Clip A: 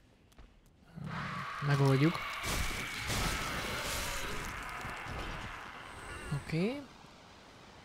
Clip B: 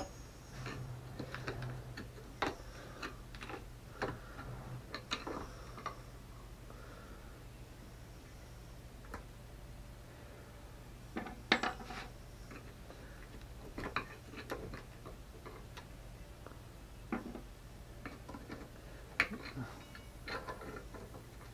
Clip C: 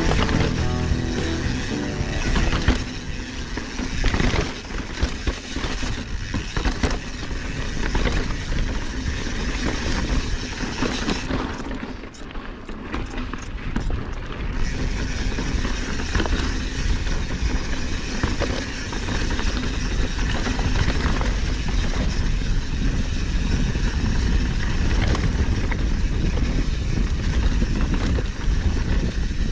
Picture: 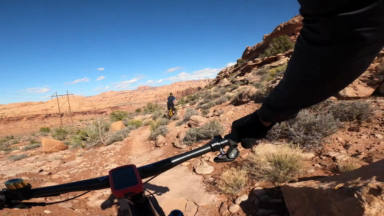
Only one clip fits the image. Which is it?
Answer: C